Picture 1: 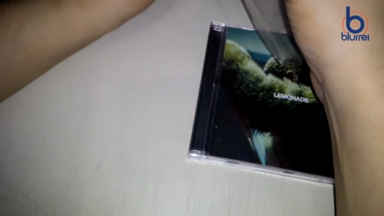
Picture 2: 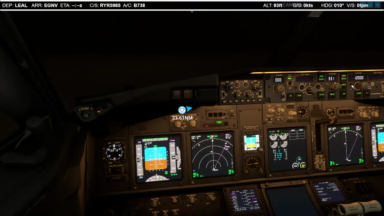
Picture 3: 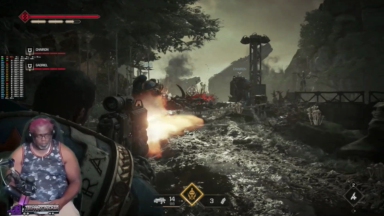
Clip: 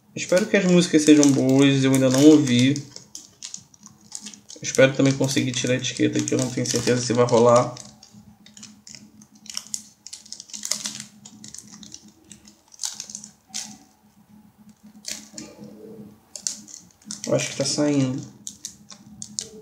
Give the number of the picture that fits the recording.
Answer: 1